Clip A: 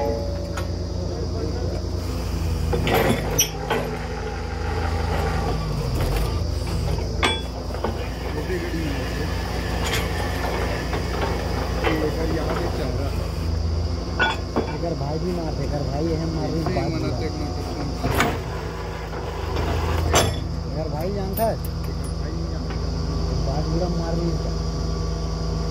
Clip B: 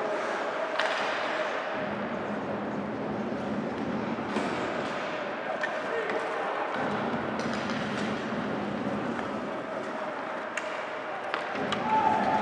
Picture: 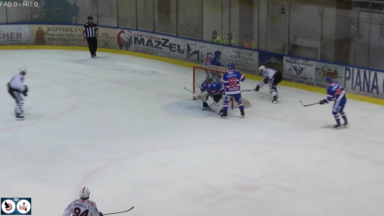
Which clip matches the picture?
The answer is B